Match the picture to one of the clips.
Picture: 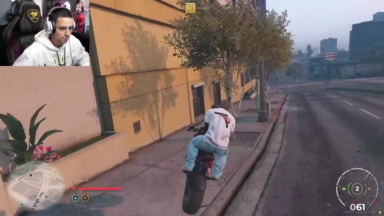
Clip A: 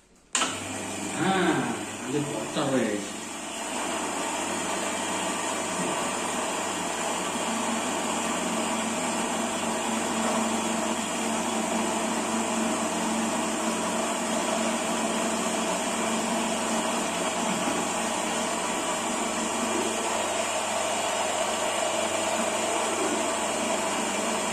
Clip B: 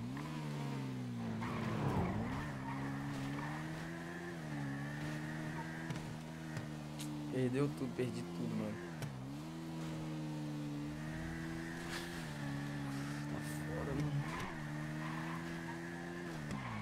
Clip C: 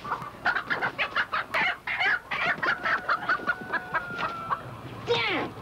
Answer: B